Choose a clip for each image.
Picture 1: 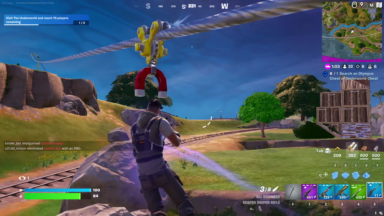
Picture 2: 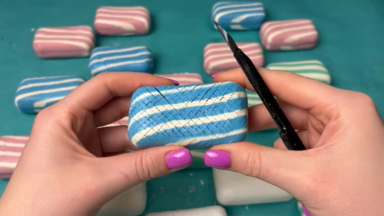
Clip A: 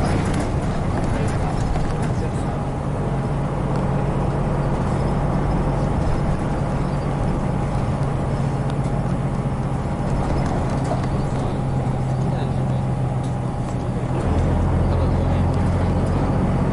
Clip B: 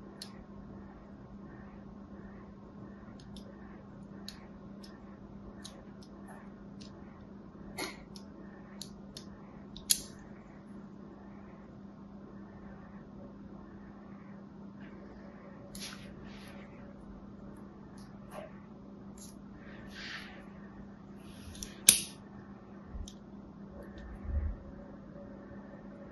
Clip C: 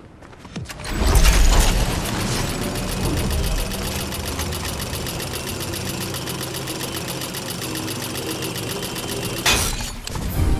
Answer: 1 C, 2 B